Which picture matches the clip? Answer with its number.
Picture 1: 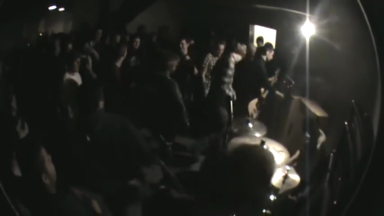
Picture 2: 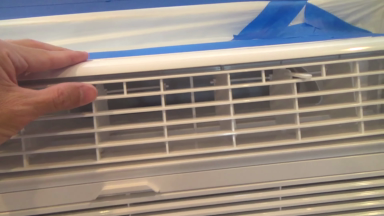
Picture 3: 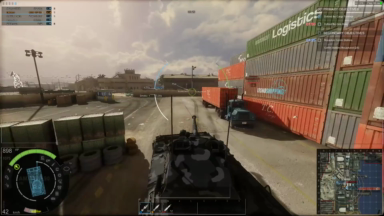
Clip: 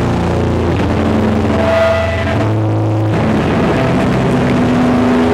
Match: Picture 1